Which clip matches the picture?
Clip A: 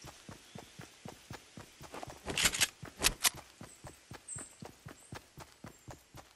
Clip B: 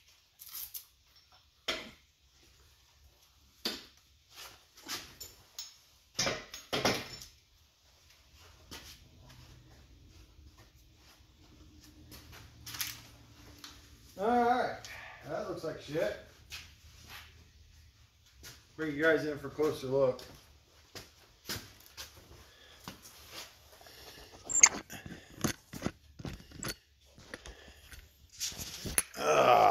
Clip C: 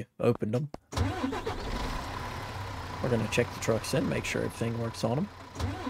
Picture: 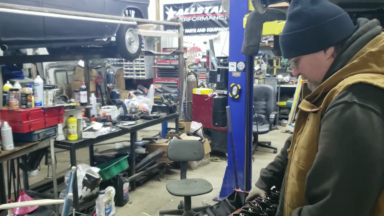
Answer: B